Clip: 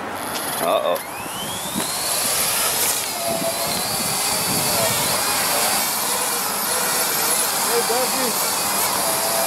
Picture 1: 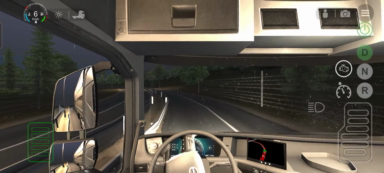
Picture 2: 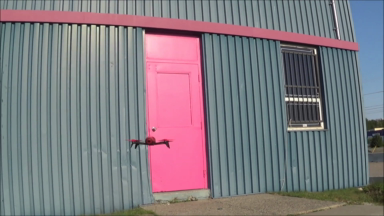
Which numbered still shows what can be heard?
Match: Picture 2